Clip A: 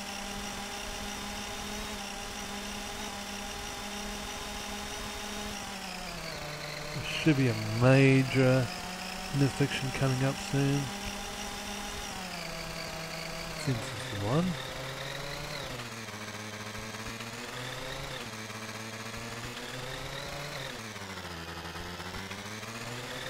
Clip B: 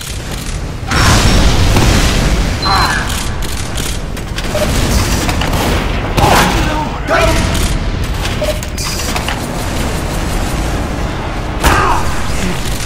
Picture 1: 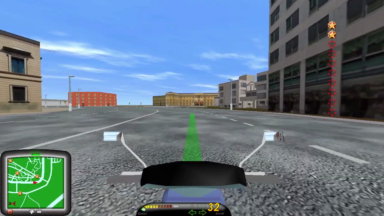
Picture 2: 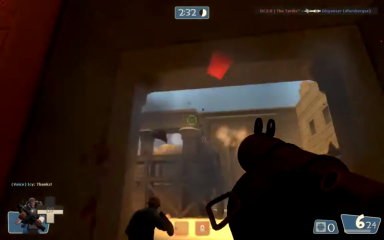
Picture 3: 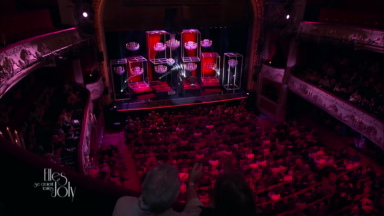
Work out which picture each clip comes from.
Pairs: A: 1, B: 2